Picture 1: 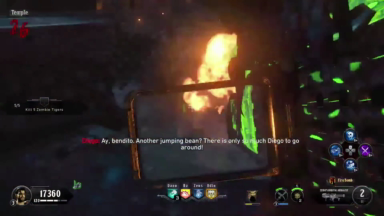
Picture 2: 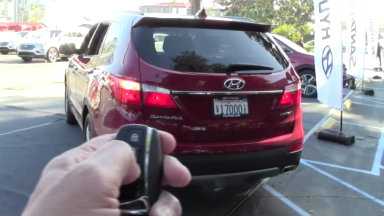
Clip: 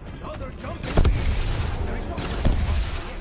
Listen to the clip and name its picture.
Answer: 1